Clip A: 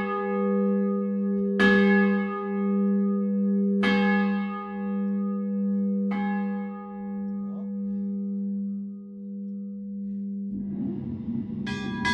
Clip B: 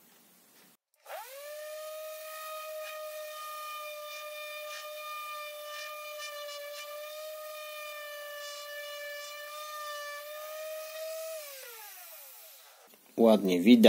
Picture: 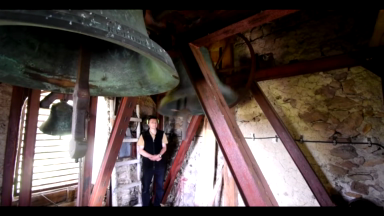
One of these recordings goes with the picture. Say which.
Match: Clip A